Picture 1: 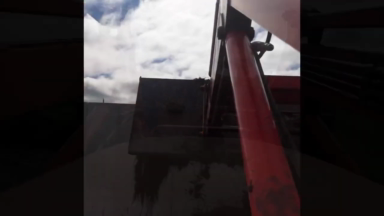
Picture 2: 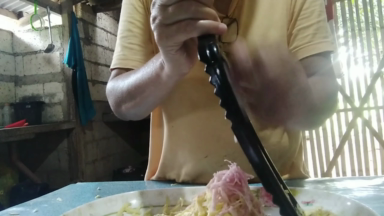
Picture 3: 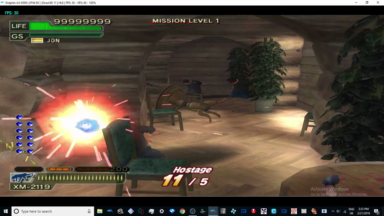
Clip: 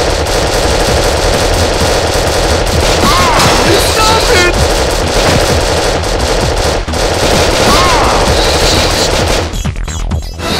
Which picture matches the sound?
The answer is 3